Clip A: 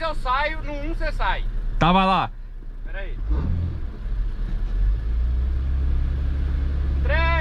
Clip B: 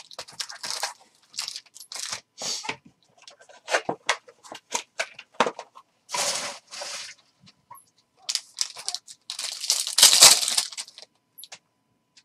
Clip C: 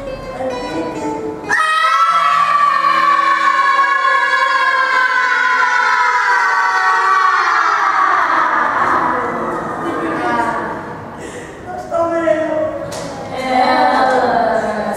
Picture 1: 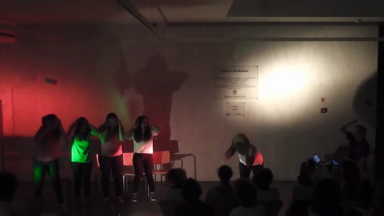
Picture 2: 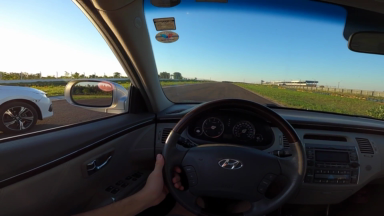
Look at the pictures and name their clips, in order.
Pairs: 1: C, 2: A